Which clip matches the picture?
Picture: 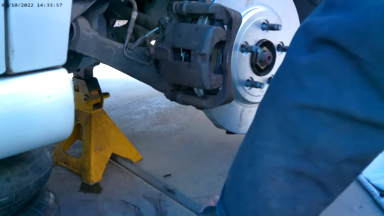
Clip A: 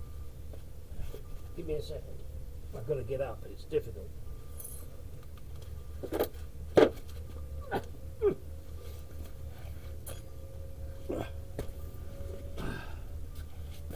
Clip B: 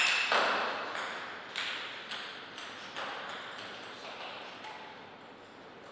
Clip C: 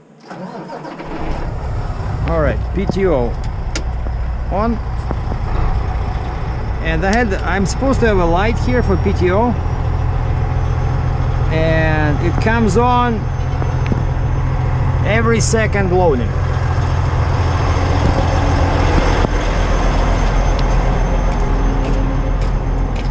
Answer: A